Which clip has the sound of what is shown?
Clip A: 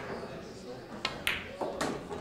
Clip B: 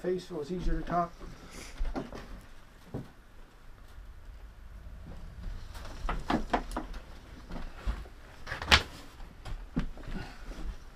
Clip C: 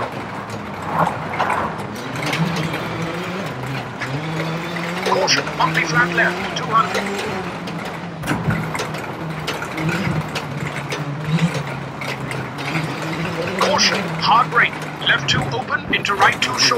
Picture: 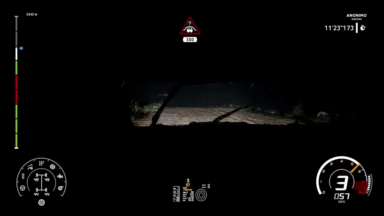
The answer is C